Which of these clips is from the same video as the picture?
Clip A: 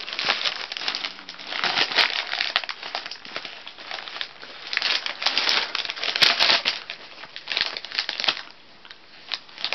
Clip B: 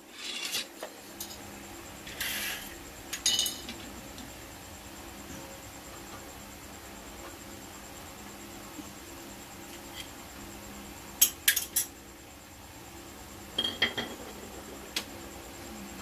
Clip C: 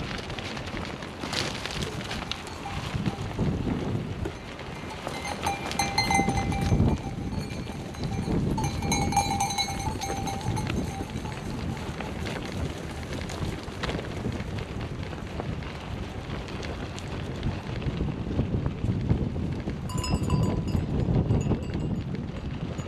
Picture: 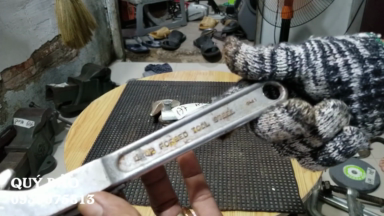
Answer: B